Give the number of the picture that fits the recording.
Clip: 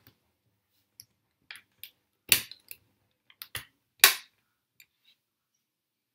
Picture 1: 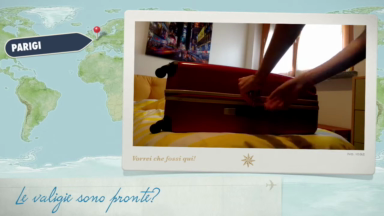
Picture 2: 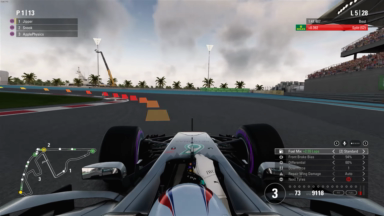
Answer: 1